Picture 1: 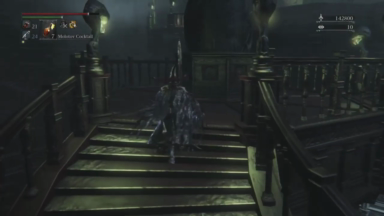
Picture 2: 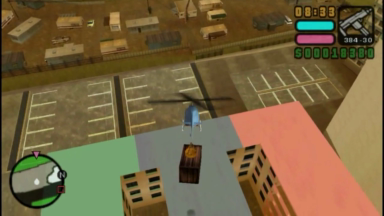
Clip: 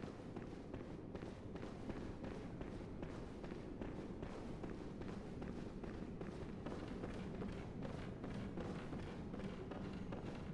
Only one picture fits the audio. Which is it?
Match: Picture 1